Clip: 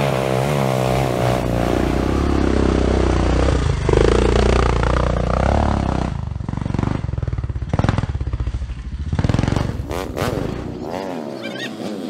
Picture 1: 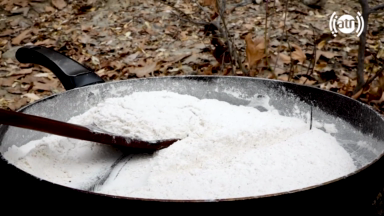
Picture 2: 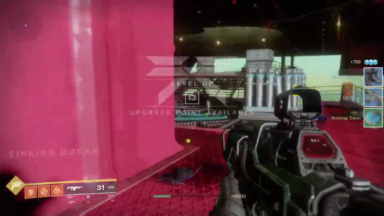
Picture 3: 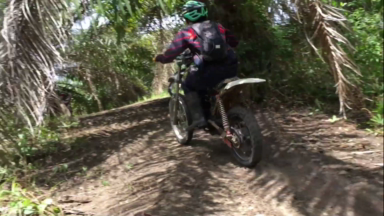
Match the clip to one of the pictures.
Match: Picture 3